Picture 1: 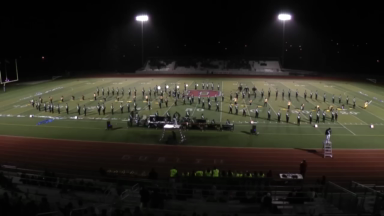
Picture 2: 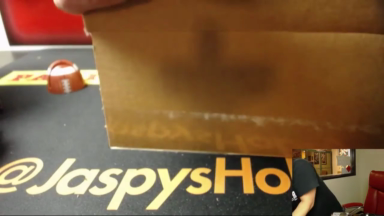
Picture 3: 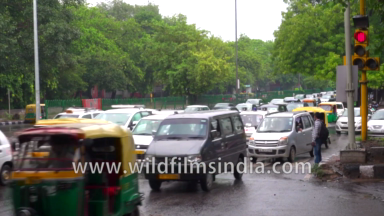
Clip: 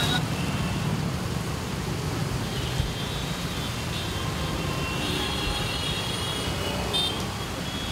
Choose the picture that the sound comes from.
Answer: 3